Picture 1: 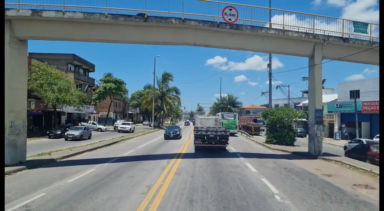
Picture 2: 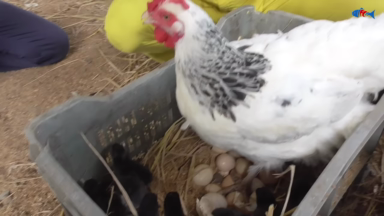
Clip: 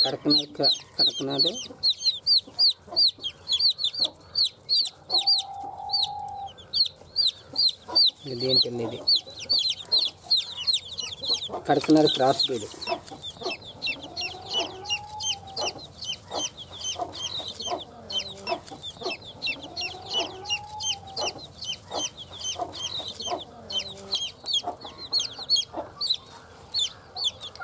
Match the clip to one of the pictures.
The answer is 2